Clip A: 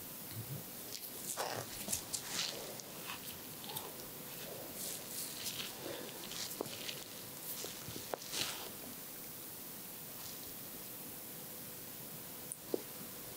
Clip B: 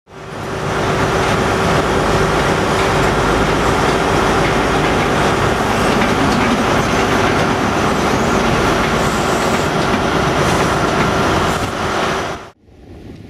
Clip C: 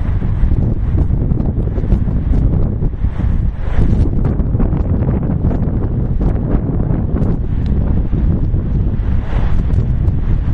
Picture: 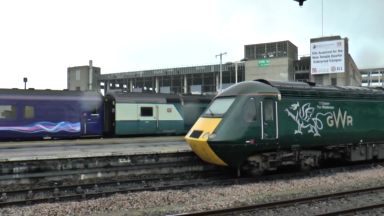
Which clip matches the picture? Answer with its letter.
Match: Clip B